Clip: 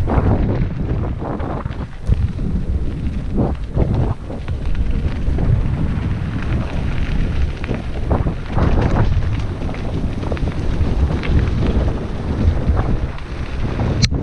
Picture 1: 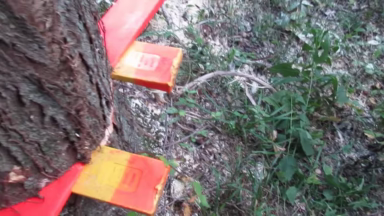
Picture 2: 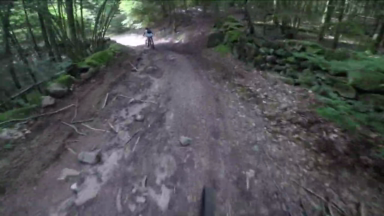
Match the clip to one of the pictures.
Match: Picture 2